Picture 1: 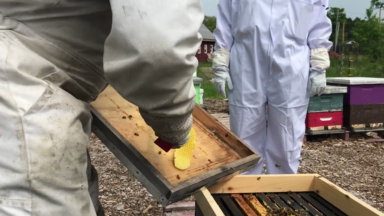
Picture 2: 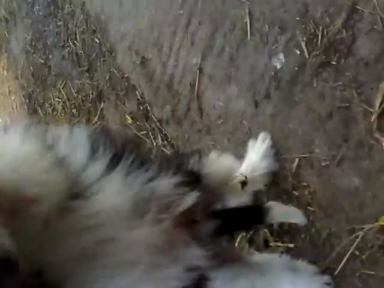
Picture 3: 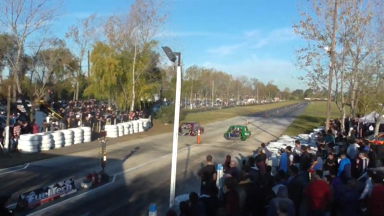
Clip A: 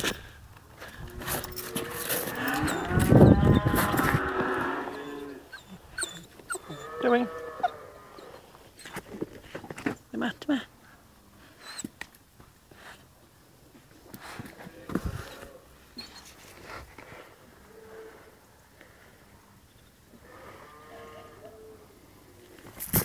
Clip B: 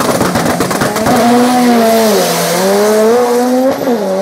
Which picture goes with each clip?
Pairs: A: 2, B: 3